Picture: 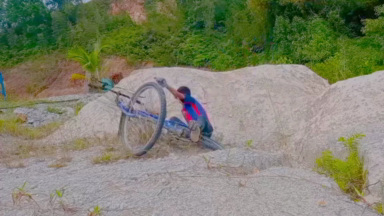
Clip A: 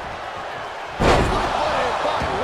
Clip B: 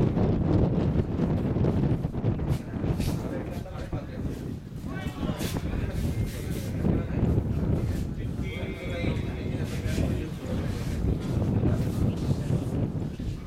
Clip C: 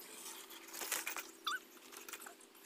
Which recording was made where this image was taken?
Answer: C